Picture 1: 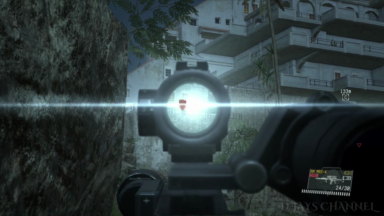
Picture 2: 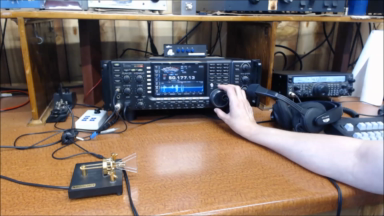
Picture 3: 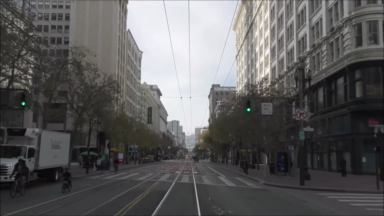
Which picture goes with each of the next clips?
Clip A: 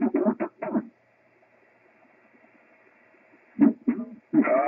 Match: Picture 2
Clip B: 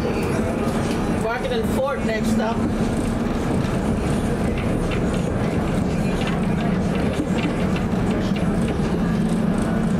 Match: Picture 3